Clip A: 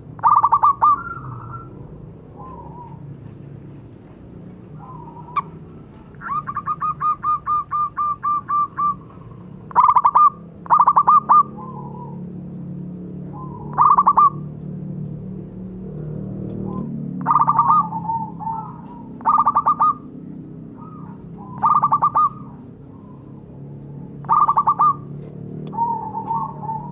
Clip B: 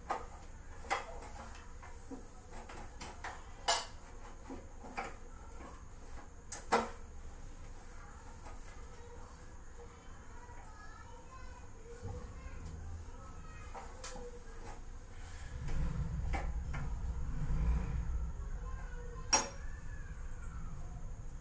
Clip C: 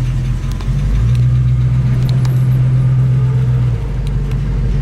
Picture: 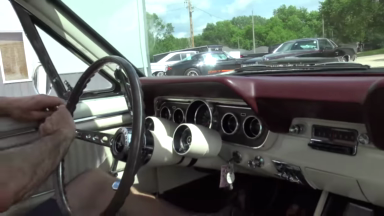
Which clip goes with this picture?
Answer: C